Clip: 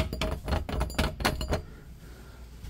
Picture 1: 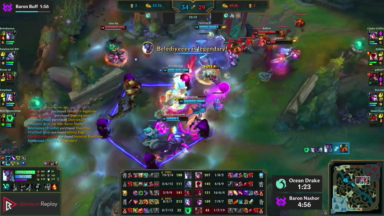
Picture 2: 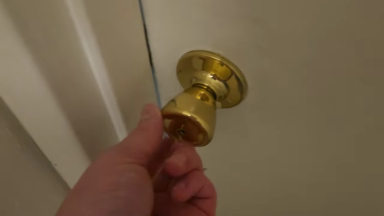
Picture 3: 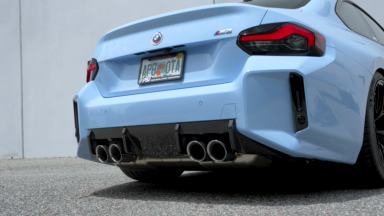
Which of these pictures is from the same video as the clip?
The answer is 2